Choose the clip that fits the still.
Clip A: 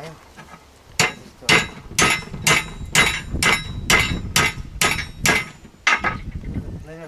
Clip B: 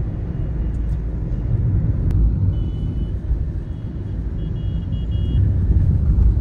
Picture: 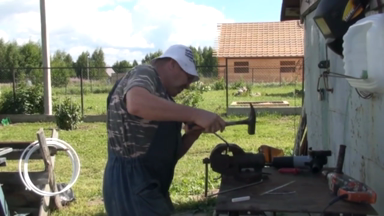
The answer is A